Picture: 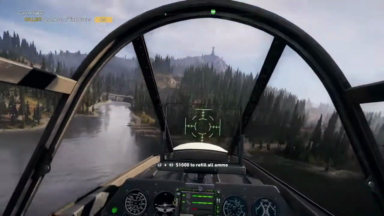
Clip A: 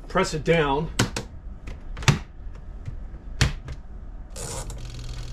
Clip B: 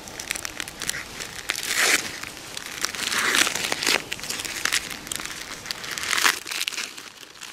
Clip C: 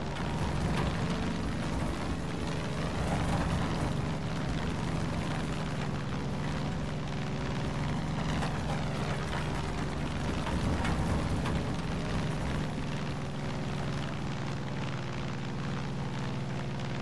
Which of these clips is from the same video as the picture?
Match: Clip C